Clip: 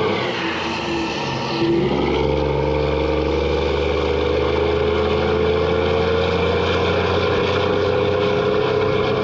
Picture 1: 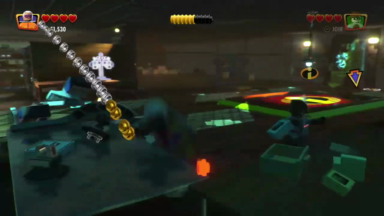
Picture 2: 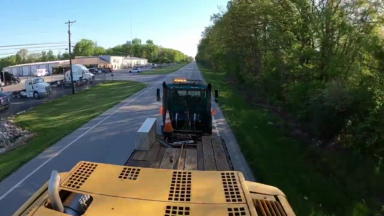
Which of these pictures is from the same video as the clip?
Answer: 2